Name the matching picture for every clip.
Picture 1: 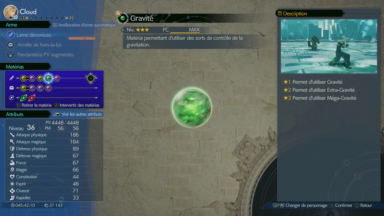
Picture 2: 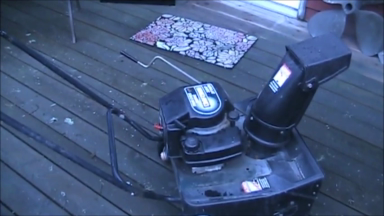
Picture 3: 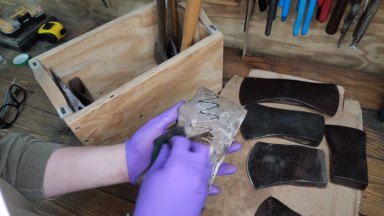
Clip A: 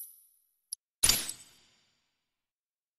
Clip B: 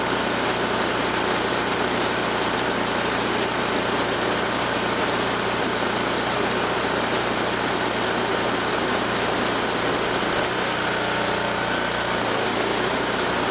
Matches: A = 1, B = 2